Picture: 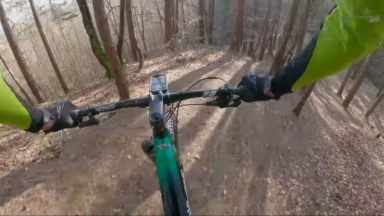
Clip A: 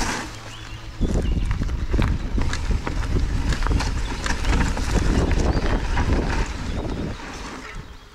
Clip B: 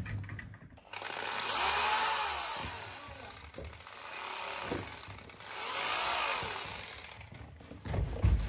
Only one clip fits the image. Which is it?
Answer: A